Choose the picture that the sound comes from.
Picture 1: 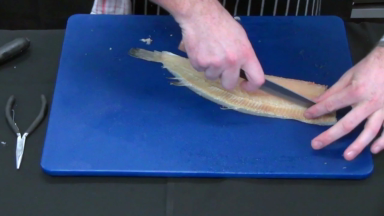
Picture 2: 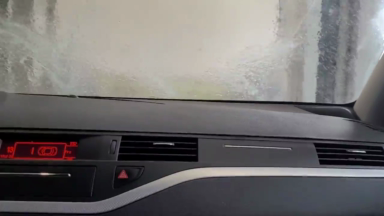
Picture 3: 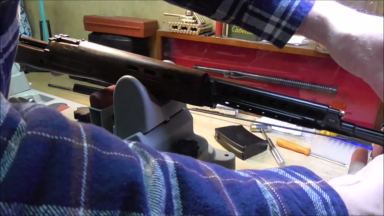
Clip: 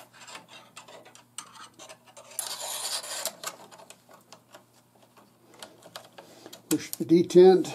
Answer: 3